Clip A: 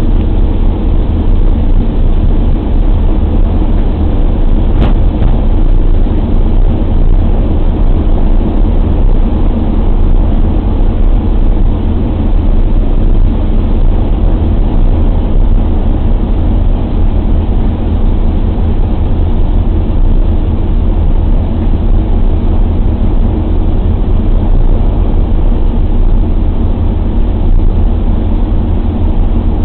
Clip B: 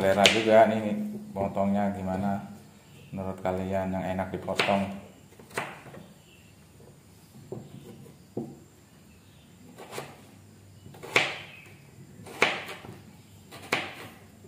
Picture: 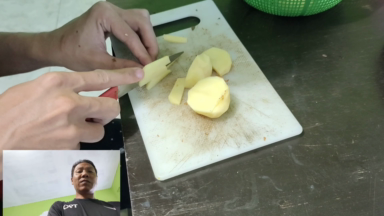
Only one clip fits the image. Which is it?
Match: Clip B